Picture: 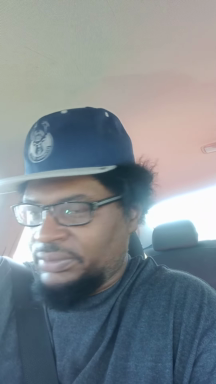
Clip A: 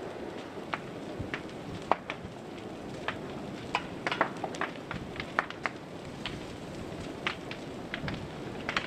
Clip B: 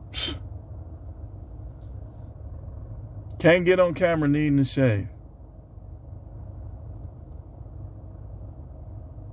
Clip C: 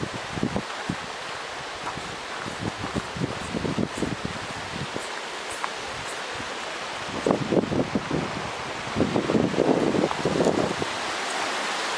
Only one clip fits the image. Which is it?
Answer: B